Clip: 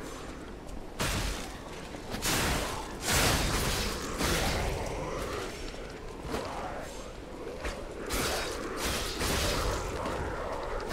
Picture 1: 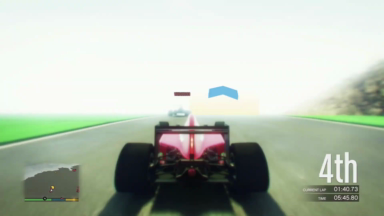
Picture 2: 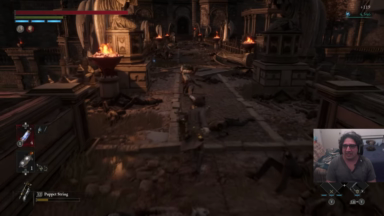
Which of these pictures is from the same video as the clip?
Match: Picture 2